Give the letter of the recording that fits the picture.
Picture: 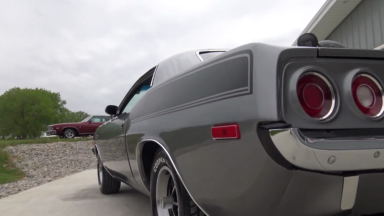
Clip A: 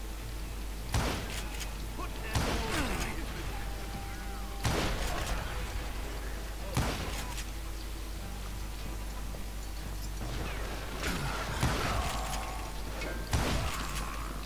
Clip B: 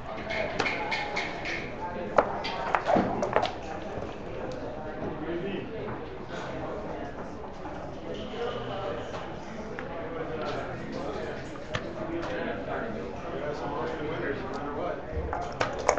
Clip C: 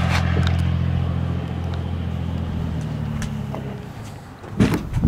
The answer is C